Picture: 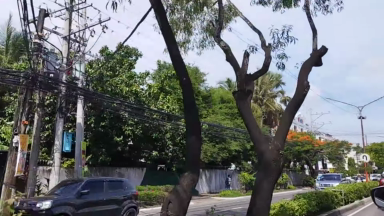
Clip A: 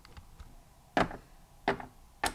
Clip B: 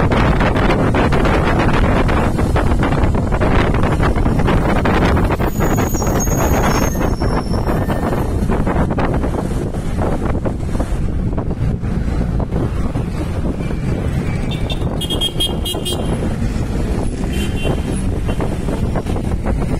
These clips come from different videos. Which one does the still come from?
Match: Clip B